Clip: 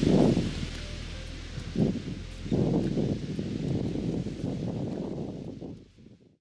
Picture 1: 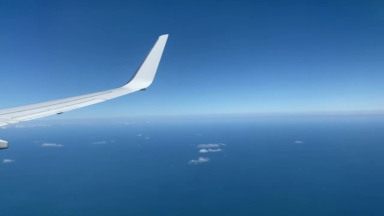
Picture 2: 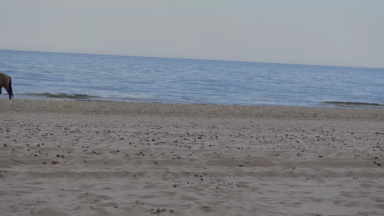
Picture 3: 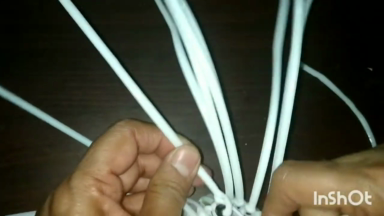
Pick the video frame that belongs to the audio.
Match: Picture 2